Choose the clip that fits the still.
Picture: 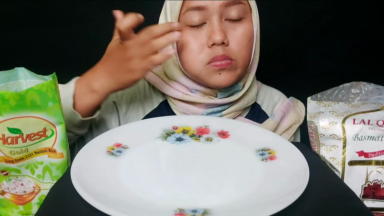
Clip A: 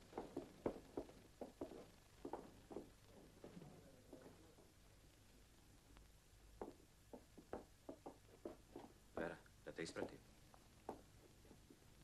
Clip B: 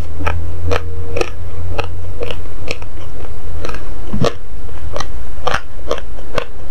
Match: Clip B